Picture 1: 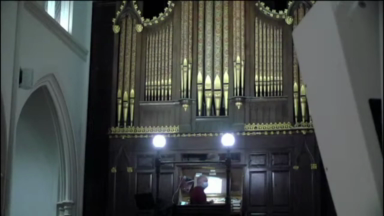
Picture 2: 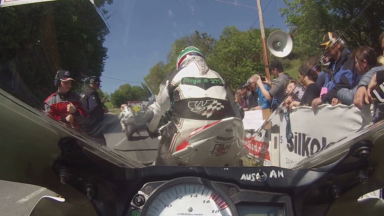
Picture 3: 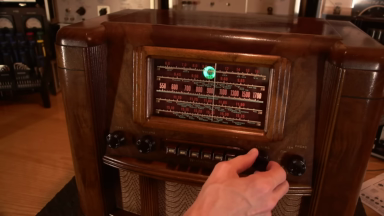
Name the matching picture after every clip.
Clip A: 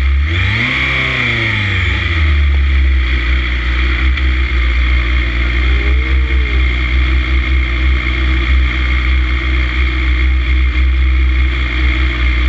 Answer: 2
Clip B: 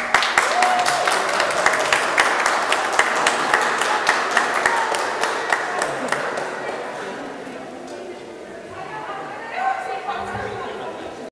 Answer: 1